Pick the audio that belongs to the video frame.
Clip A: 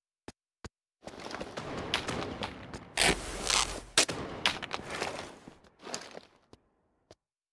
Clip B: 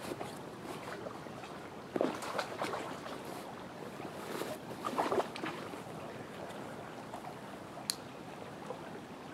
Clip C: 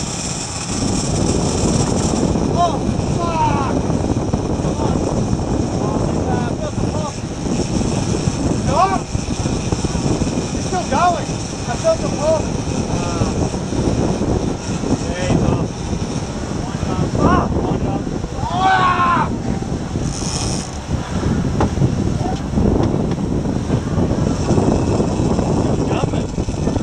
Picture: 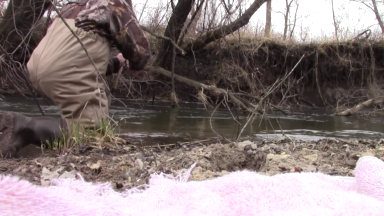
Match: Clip B